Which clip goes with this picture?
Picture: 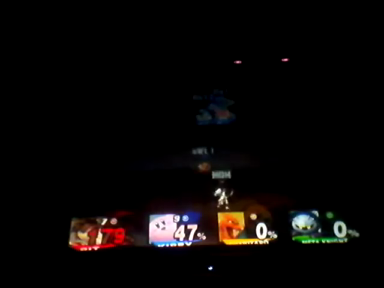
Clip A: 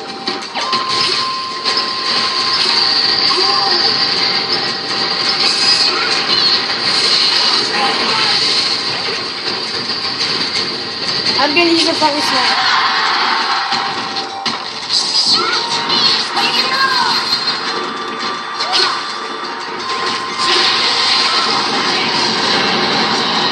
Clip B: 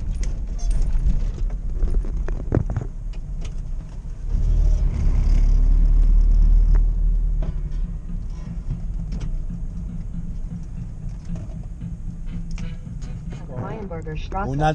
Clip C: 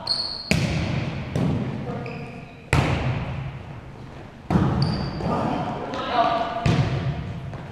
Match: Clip A